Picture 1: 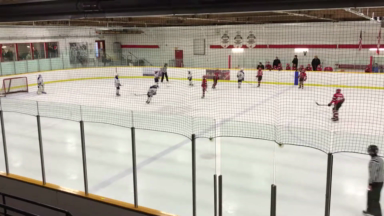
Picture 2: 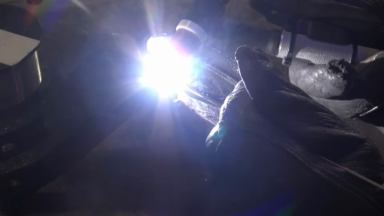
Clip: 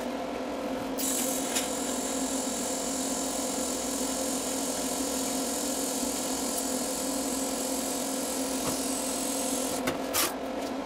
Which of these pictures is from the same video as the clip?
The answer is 2